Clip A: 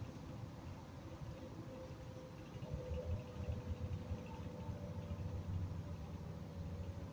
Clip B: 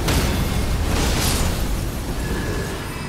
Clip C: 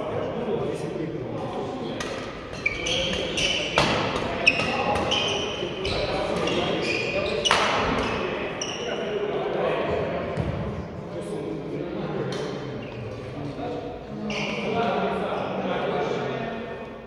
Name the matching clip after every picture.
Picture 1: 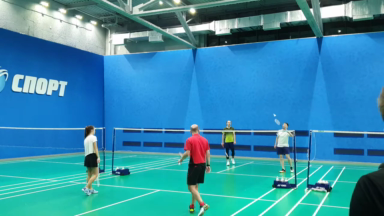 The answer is C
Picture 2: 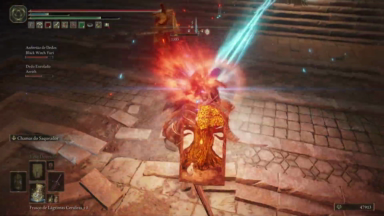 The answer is B